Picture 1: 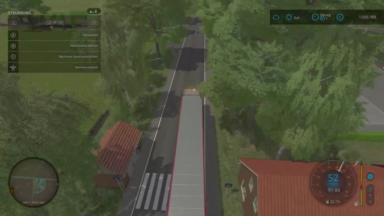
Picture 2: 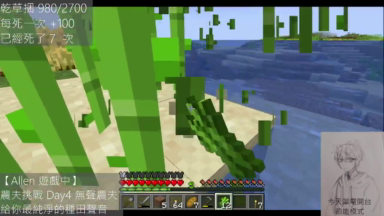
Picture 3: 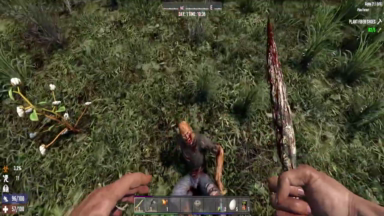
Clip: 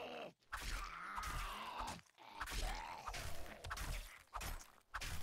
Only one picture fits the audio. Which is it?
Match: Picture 3